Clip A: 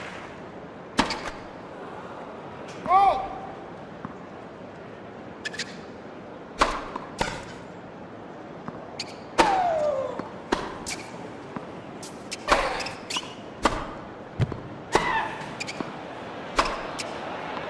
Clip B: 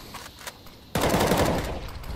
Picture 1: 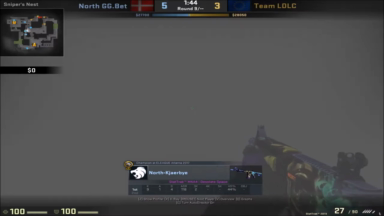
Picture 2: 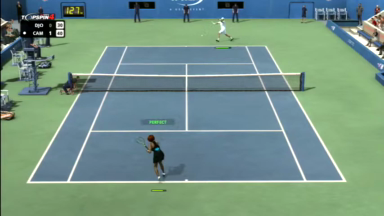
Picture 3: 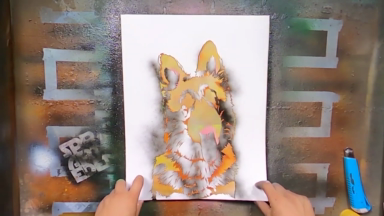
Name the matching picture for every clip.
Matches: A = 2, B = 1